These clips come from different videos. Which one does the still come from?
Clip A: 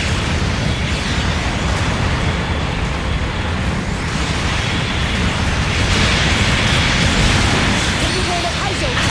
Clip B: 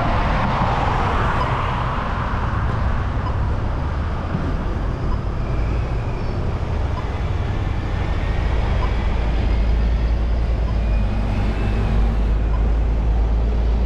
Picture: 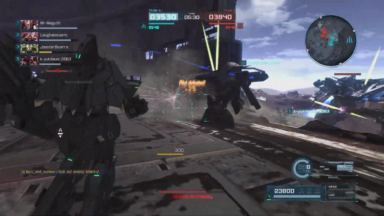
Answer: A